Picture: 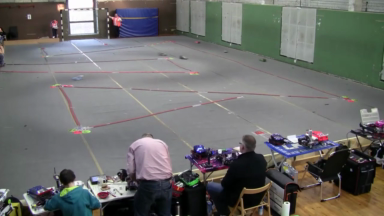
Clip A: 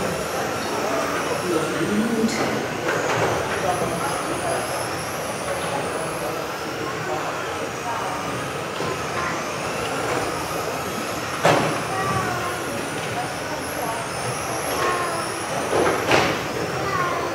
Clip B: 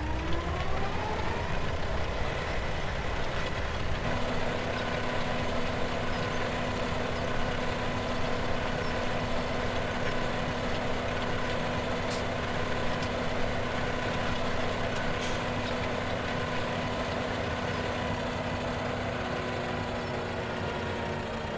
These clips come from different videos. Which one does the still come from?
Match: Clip A